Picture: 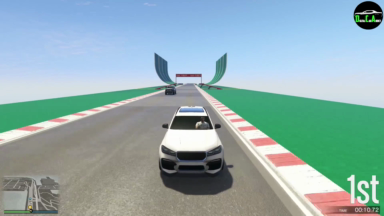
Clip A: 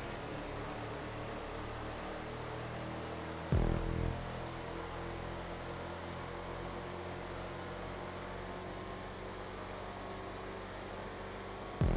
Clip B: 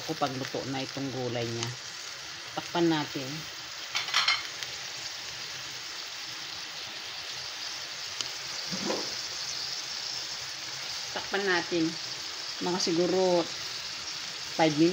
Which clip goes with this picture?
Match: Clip A